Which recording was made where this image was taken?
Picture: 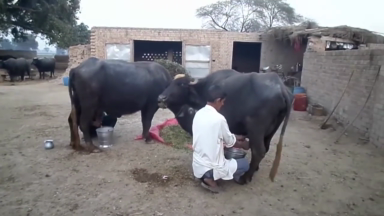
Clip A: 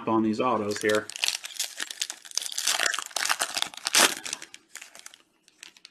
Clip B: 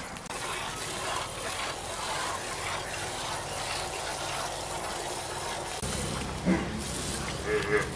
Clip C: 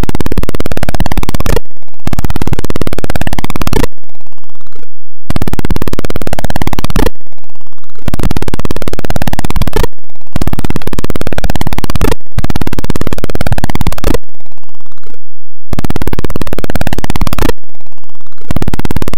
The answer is B